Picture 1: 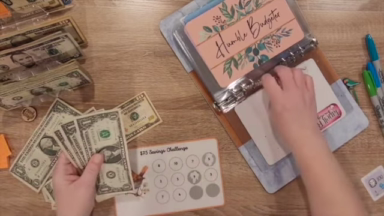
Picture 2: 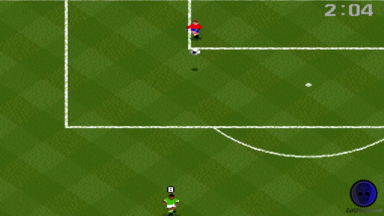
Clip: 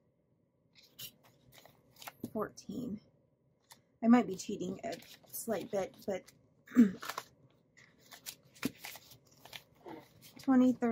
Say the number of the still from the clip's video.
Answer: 1